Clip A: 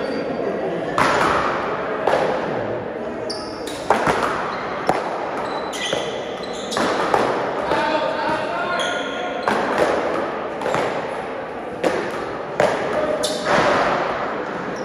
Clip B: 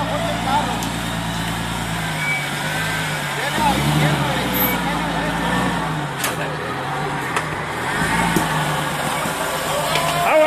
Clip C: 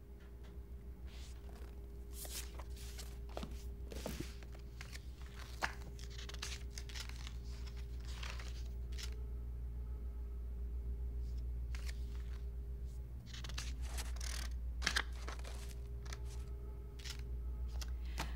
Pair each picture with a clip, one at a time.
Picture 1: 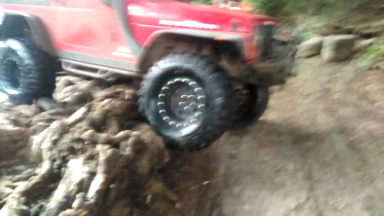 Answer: B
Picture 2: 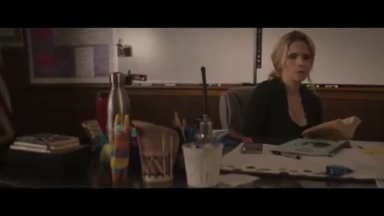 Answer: C